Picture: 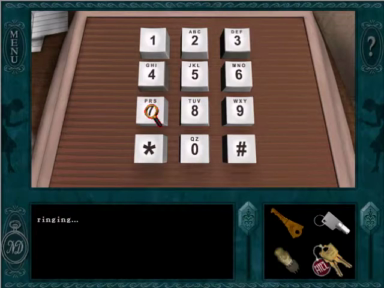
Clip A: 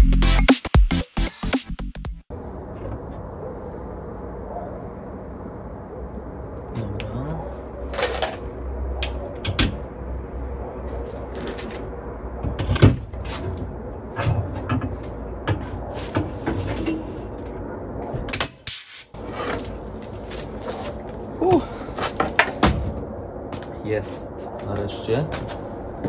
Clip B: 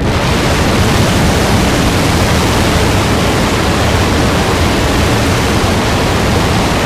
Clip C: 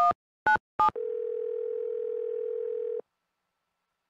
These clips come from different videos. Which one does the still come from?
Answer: C